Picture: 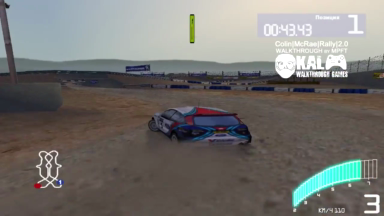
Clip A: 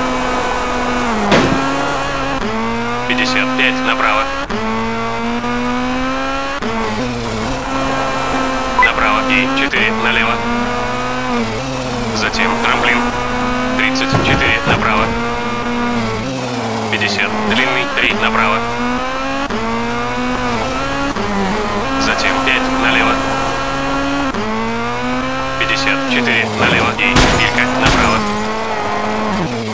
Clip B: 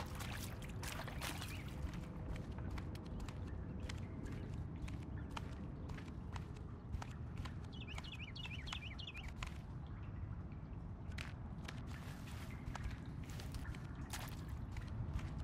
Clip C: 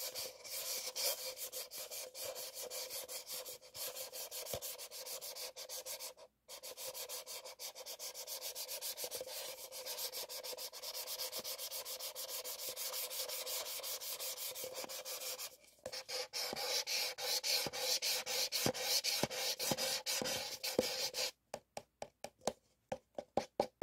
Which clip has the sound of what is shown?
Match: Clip A